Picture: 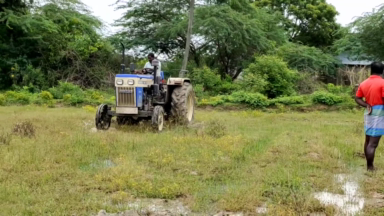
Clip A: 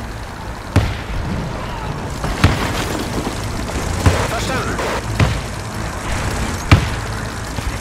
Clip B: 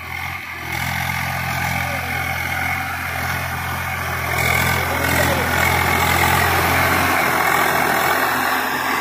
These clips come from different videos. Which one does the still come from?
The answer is B